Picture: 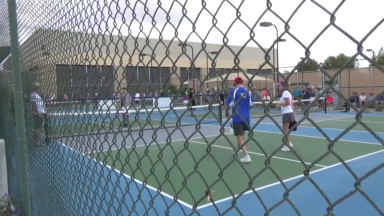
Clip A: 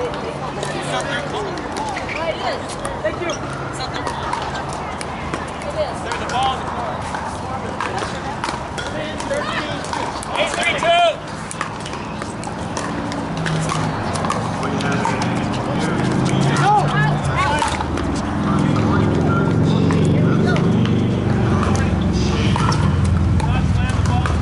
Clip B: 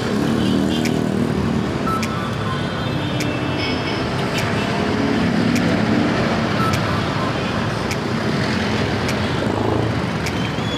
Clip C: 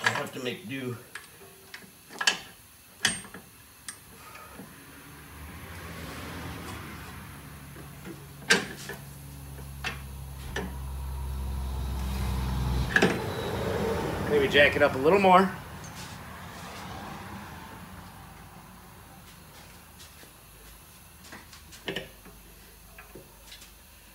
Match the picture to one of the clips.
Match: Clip A